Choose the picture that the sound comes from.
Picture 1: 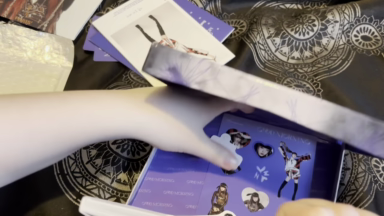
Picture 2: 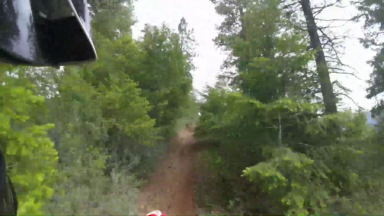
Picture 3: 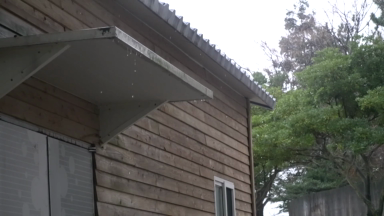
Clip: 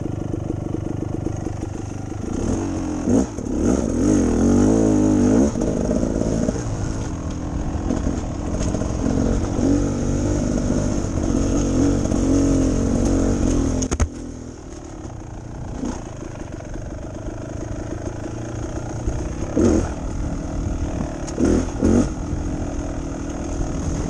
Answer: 2